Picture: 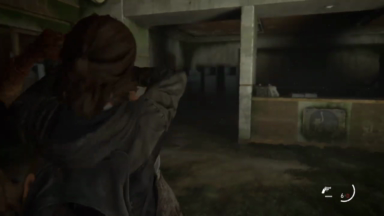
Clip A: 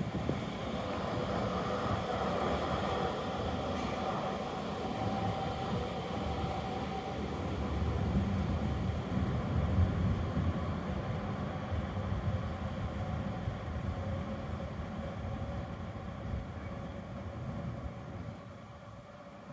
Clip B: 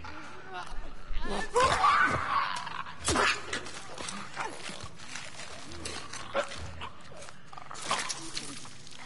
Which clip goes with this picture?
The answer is B